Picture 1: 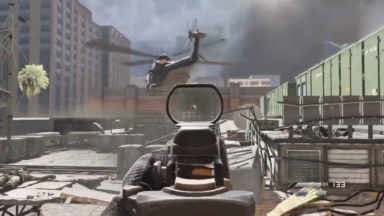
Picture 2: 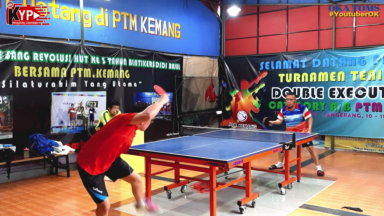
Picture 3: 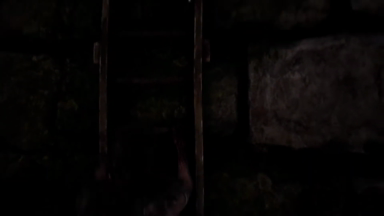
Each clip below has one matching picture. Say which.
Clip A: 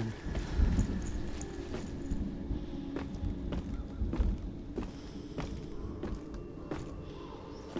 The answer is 3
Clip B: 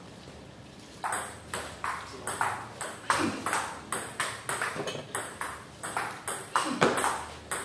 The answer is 2